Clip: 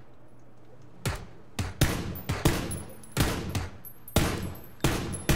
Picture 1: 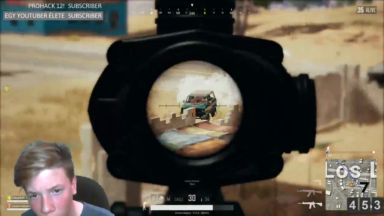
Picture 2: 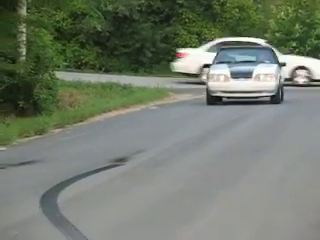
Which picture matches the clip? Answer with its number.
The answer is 1